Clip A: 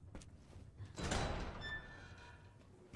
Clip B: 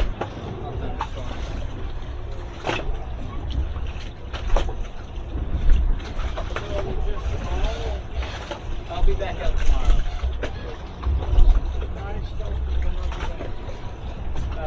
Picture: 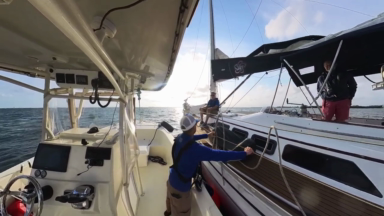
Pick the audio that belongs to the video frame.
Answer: B